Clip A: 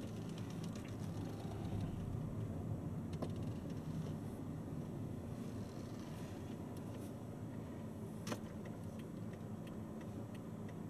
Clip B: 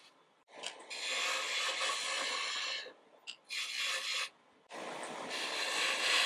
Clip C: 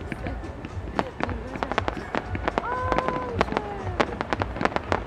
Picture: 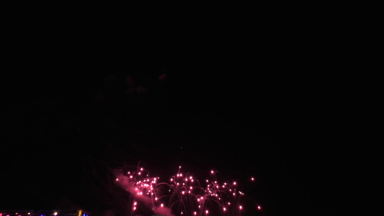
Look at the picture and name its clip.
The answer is C